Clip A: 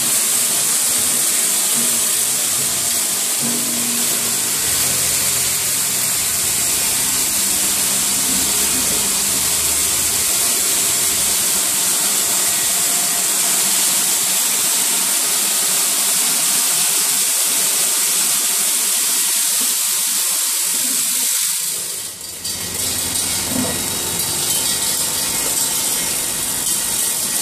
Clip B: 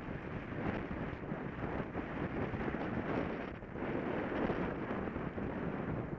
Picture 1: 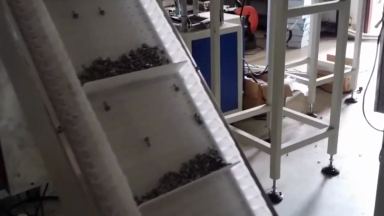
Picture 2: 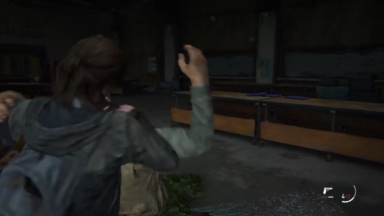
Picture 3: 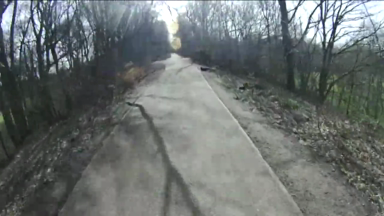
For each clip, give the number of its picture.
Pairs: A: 1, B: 3